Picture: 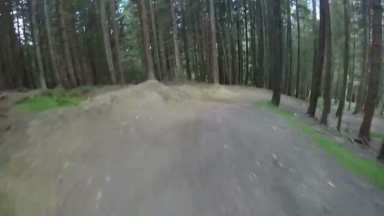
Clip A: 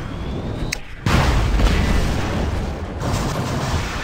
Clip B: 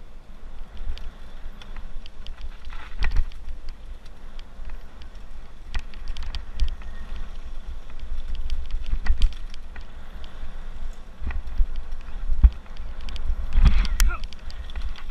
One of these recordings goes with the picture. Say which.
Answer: B